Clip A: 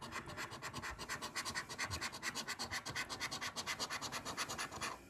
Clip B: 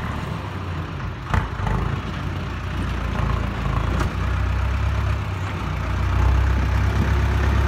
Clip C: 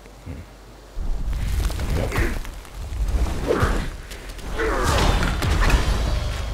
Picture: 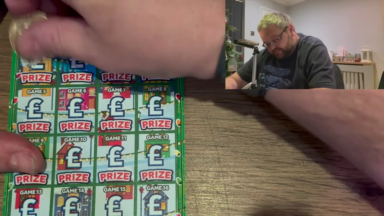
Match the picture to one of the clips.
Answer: A